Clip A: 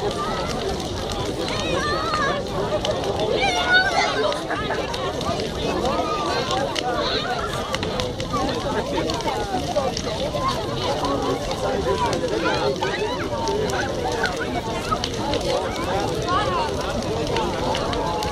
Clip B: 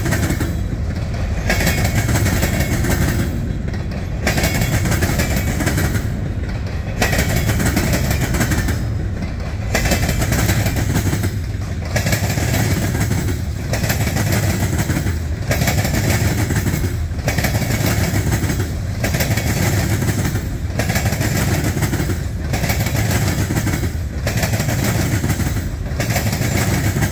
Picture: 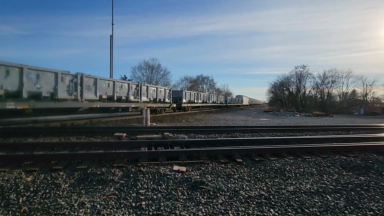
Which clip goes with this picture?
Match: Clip B